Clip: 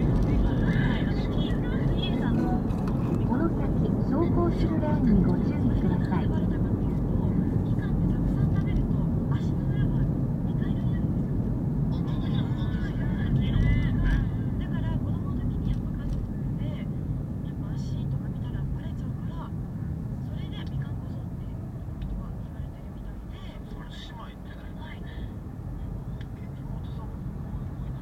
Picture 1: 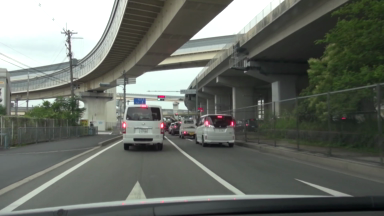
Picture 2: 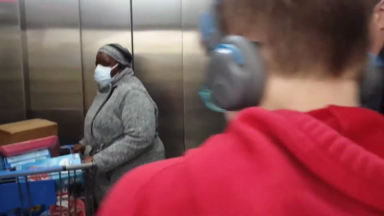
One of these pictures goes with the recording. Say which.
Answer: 1